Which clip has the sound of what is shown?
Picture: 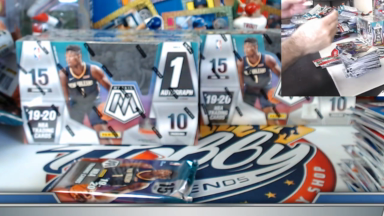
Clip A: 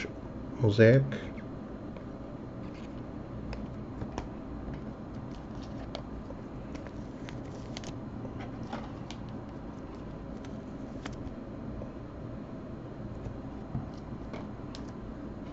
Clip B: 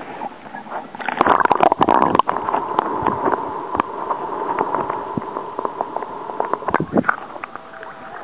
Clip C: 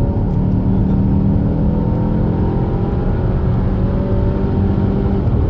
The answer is A